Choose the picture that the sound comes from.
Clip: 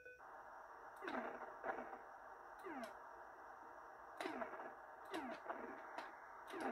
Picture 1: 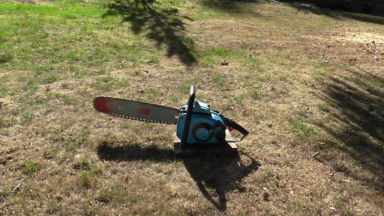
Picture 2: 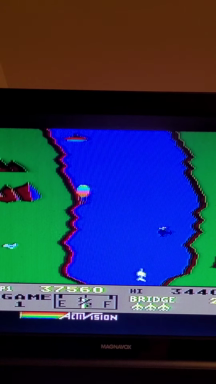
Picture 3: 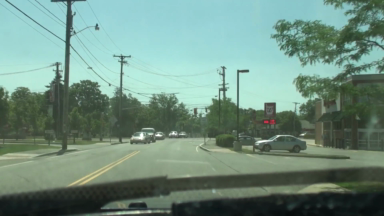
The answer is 2